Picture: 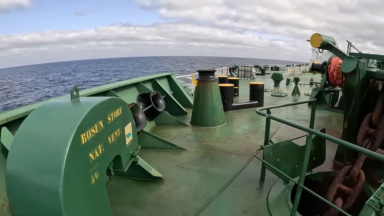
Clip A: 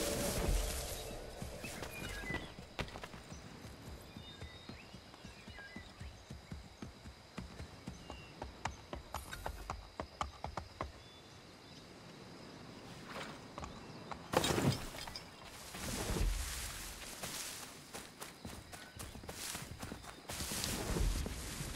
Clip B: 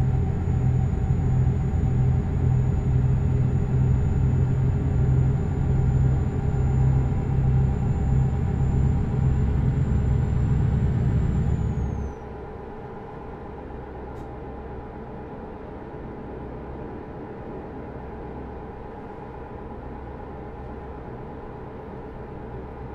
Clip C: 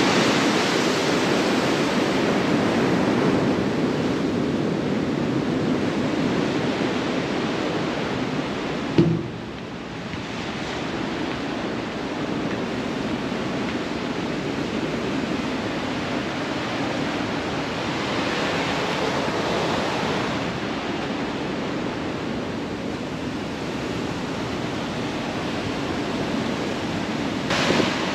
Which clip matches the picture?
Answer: C